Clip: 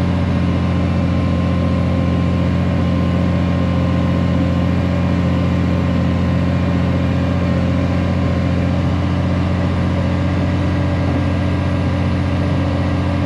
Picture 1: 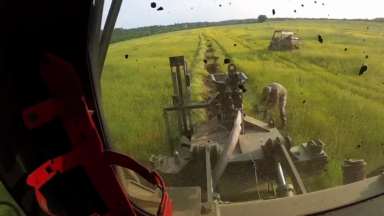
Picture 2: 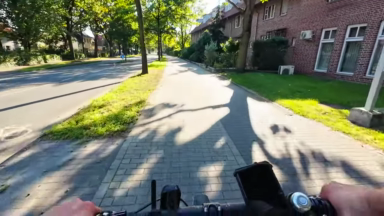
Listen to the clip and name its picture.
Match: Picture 1